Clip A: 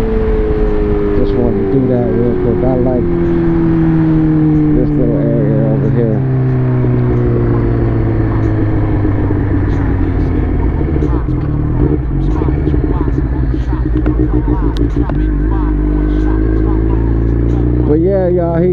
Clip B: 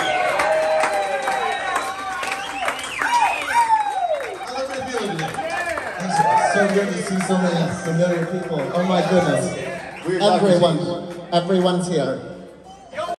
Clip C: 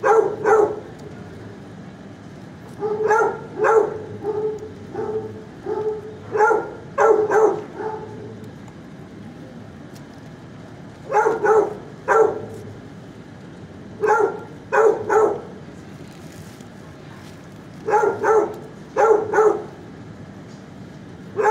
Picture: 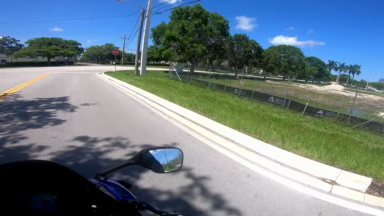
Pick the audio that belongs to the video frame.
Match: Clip A